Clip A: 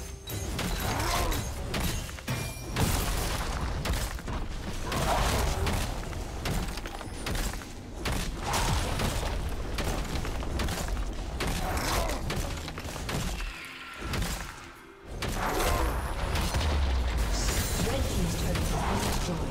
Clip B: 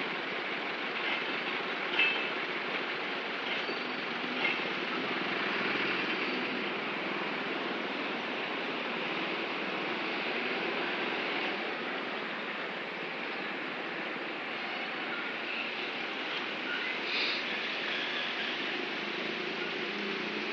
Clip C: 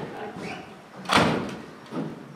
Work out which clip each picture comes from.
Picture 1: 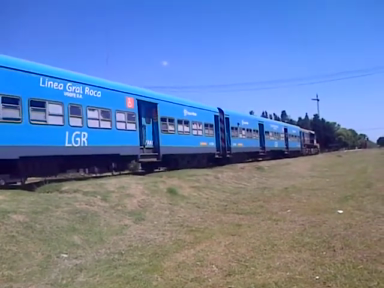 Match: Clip B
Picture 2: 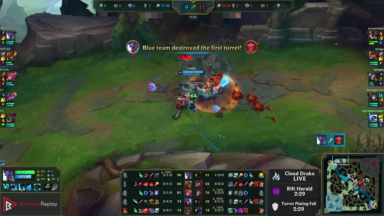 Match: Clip A